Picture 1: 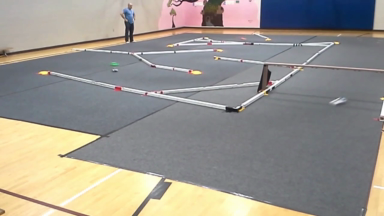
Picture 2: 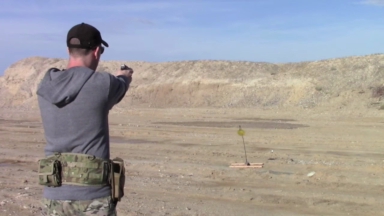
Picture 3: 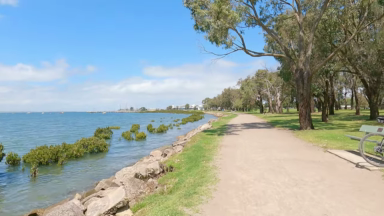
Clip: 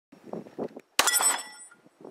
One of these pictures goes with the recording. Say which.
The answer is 2